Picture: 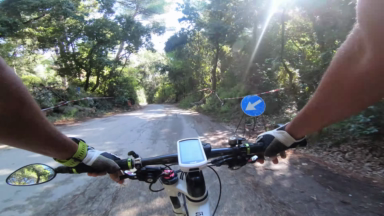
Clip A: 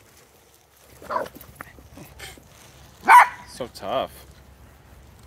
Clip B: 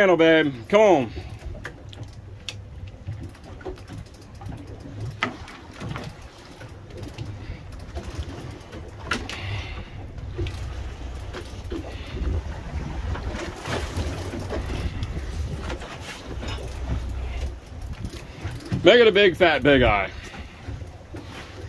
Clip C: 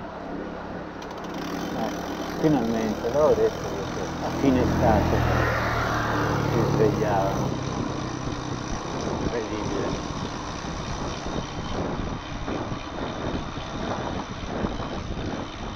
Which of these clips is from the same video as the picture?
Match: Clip C